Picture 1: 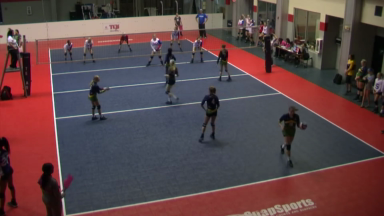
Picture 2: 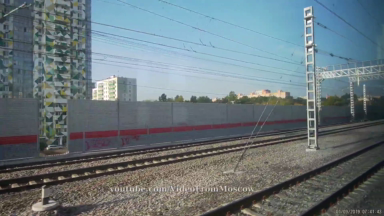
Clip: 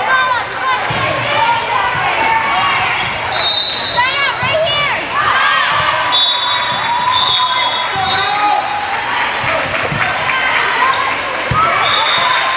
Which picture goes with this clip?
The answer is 1